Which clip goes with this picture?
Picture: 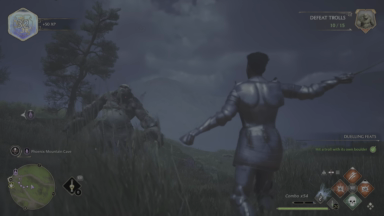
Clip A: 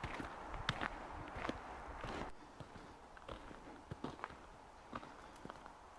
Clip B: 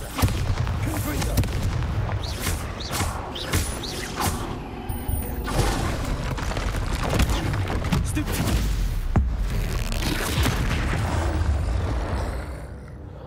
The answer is B